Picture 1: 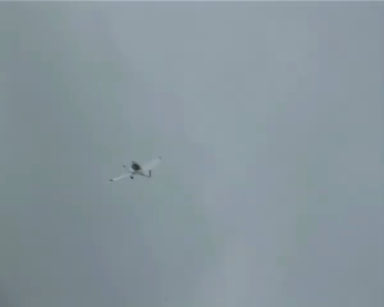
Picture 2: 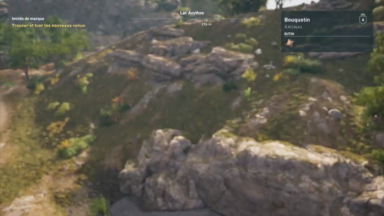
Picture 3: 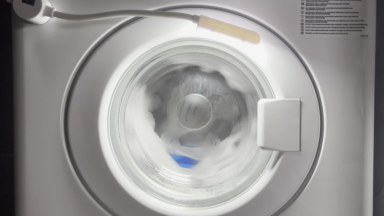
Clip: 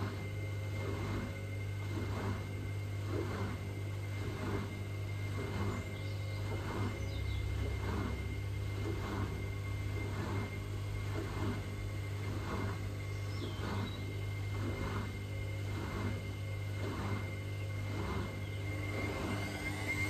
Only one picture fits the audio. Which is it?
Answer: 3